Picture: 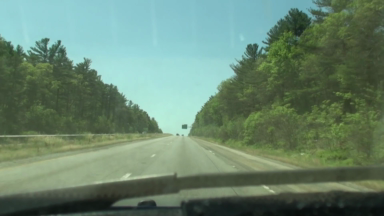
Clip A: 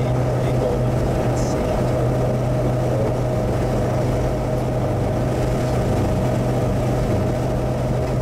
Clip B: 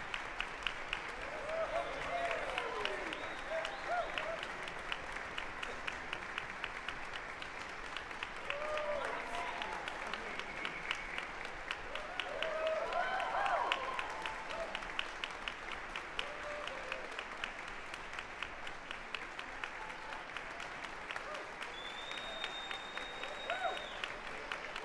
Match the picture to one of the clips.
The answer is A